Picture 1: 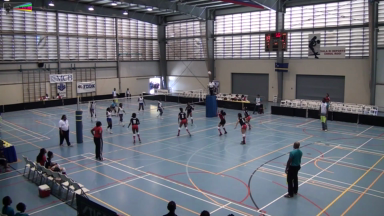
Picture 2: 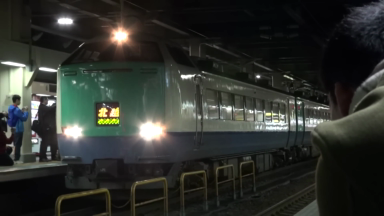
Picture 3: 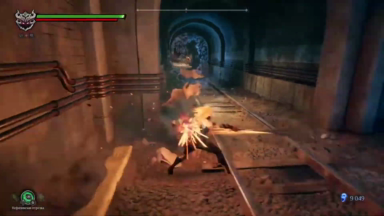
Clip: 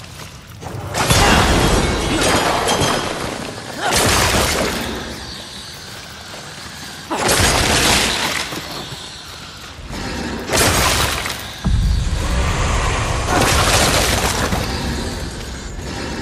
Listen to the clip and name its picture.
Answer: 3